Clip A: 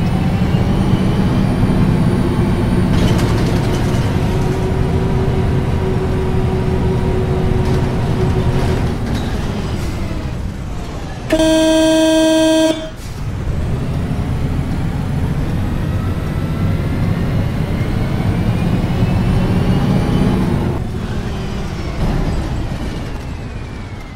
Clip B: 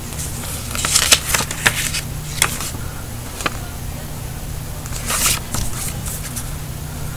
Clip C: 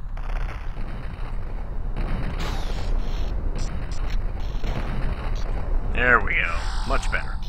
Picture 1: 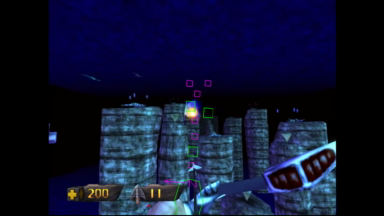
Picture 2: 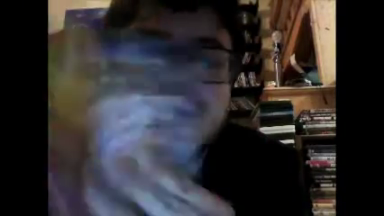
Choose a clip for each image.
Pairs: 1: C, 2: B